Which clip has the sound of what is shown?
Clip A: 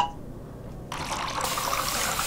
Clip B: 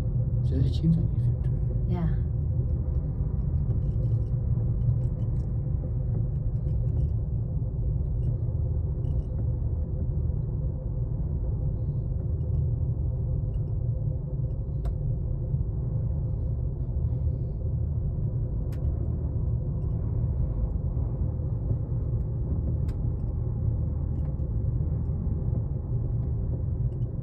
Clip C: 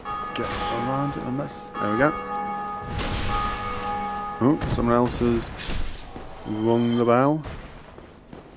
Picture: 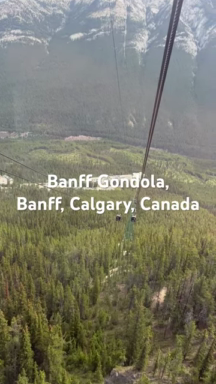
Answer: B